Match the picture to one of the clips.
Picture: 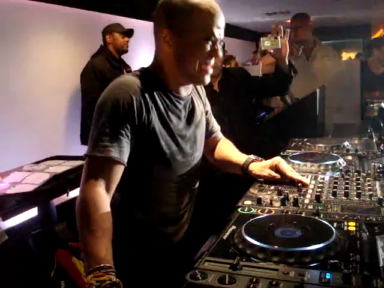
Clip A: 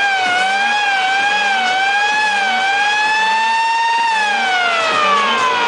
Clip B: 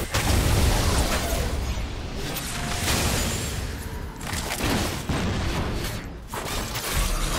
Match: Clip A